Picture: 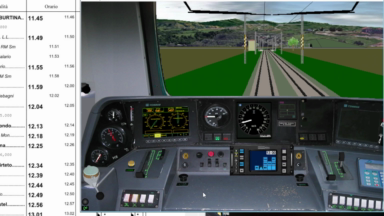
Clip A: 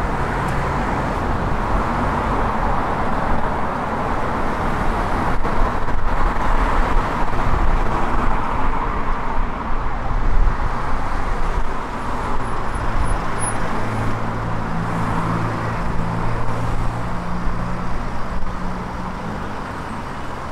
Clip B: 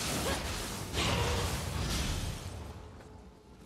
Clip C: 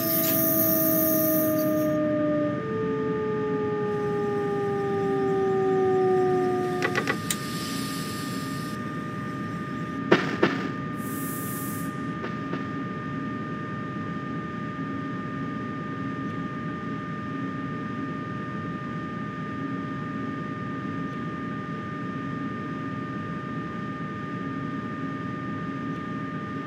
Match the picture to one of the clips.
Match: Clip C